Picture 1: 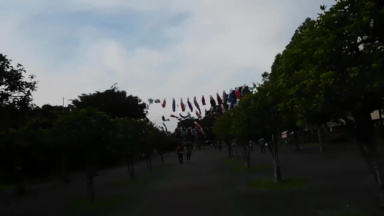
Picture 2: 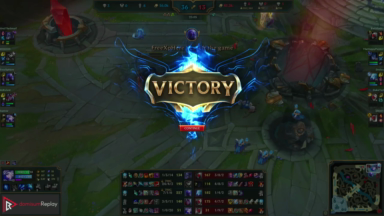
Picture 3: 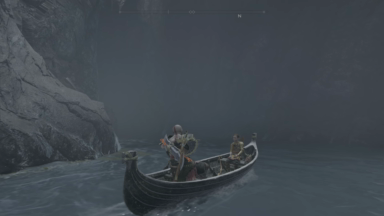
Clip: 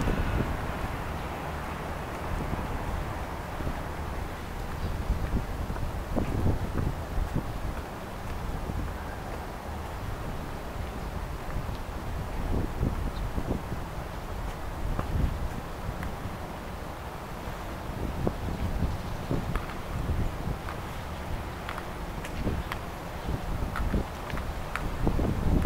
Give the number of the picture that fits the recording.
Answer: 1